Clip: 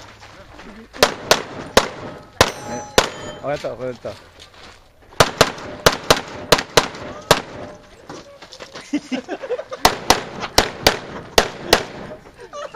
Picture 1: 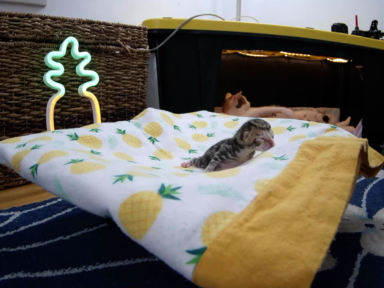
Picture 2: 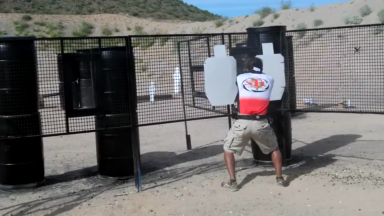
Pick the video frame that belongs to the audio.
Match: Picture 2